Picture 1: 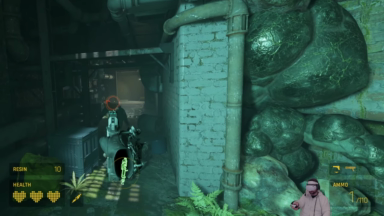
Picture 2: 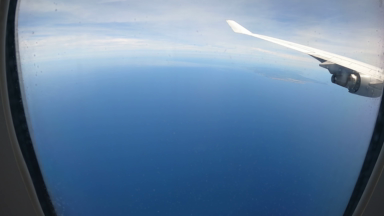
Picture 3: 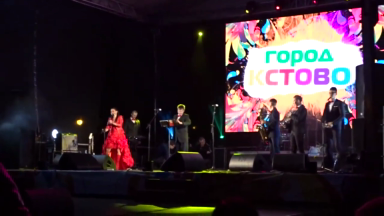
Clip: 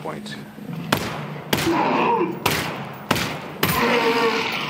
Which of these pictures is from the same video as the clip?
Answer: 1